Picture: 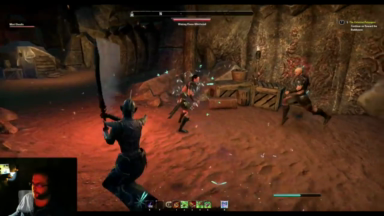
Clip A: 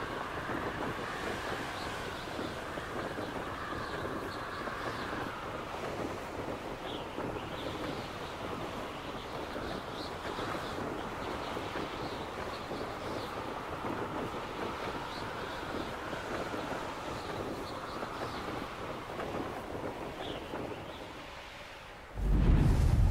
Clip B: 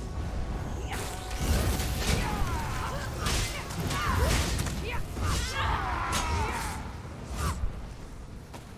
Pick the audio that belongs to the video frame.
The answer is B